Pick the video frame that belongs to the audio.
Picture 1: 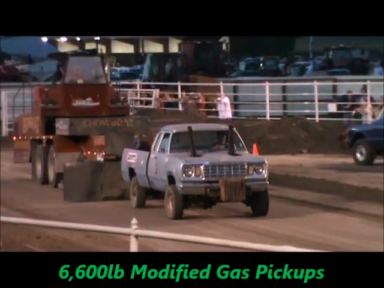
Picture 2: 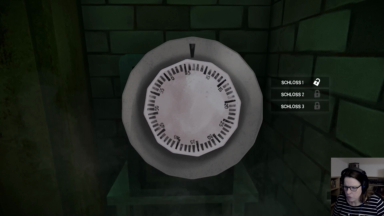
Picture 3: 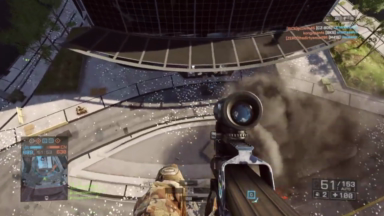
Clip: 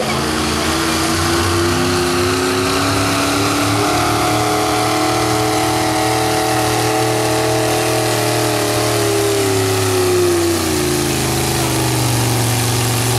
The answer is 1